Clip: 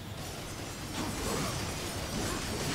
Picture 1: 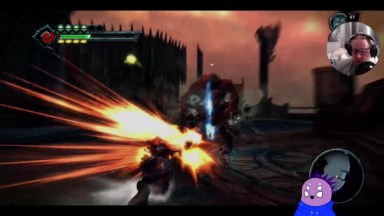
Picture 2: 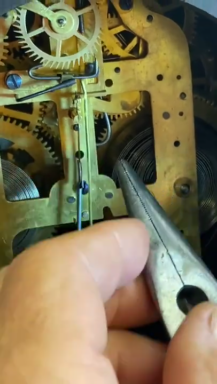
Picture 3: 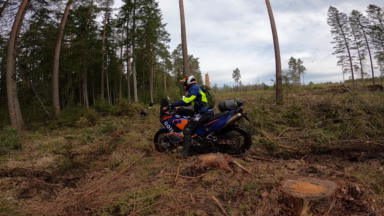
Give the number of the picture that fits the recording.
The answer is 1